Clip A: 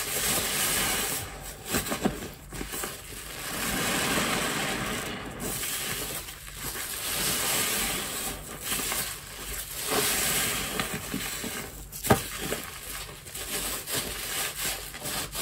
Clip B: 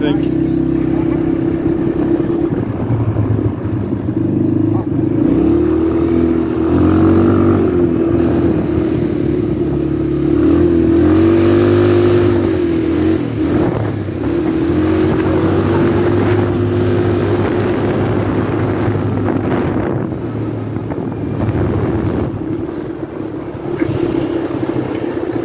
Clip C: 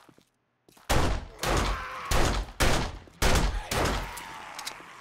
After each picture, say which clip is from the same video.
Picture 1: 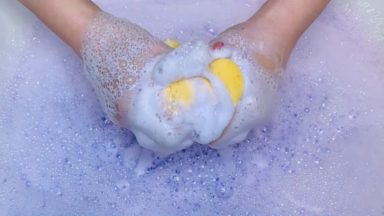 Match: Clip A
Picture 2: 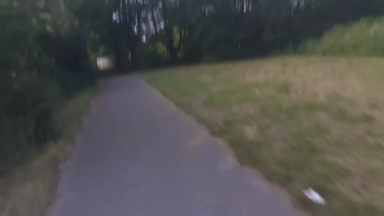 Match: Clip B